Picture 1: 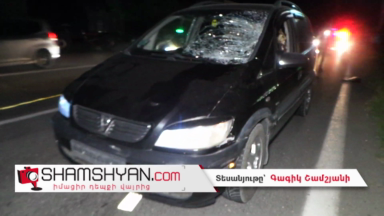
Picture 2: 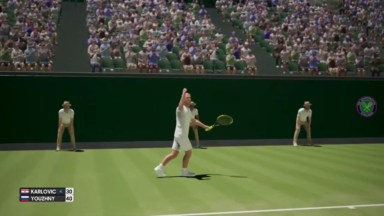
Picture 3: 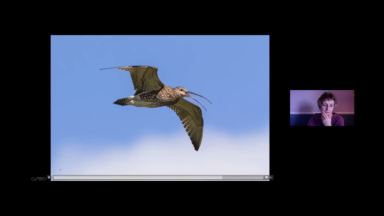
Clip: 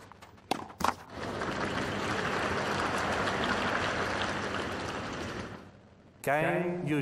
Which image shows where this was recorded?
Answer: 2